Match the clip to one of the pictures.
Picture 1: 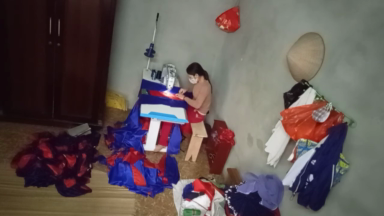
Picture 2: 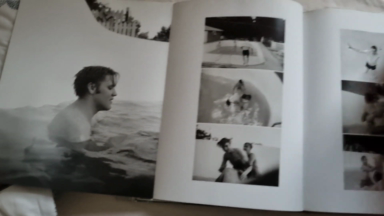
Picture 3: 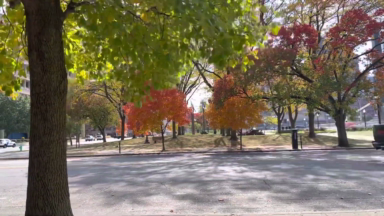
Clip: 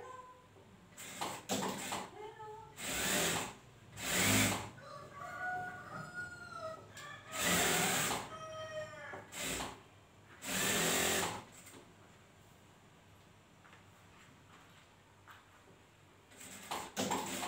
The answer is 1